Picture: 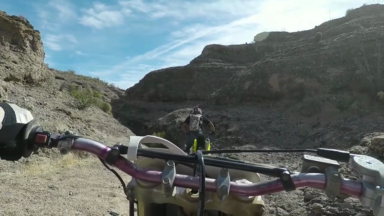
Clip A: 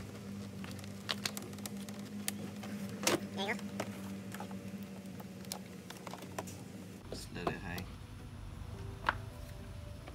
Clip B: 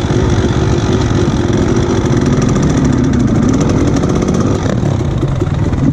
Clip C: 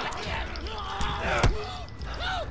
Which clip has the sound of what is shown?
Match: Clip B